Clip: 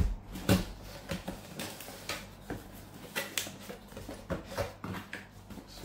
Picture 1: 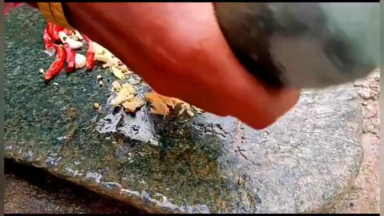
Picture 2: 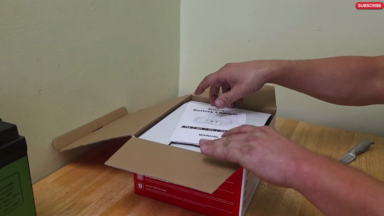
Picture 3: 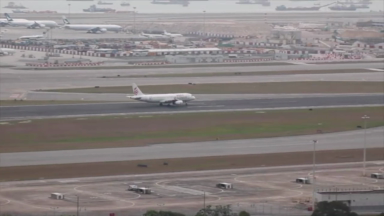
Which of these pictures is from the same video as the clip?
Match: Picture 2